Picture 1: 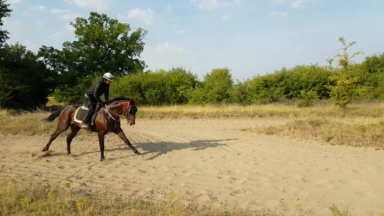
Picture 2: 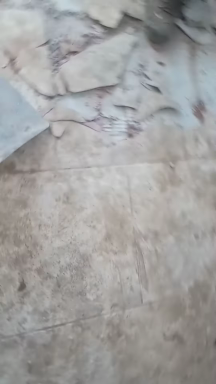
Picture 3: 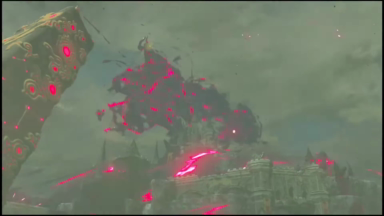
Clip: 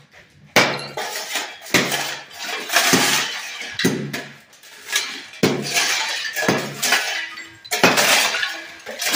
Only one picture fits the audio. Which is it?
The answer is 2